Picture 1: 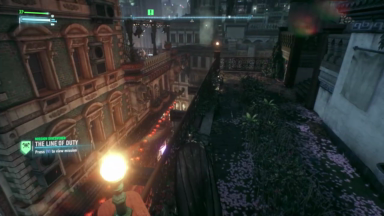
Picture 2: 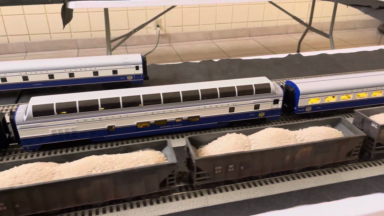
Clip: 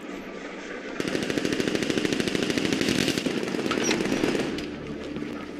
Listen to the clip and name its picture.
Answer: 1